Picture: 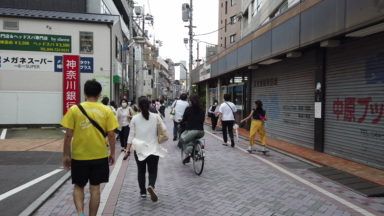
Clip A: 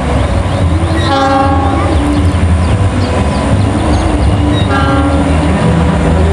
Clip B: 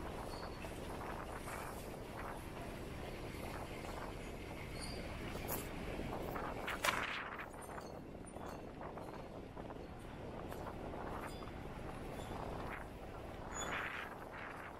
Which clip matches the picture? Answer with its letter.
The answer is B